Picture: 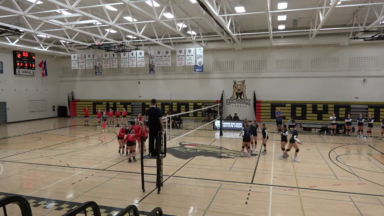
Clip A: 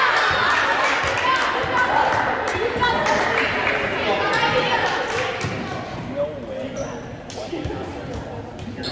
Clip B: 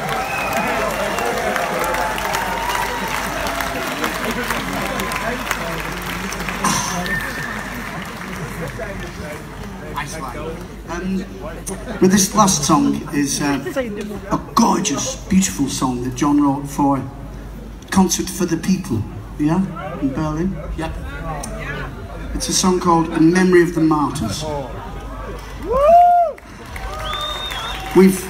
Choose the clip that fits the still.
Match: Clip A